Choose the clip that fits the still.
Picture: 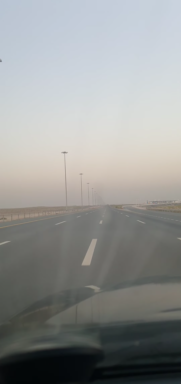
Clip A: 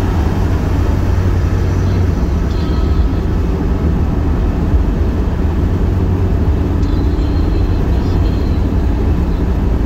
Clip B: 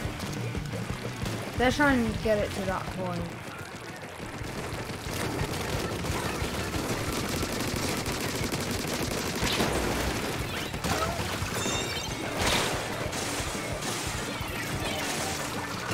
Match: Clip A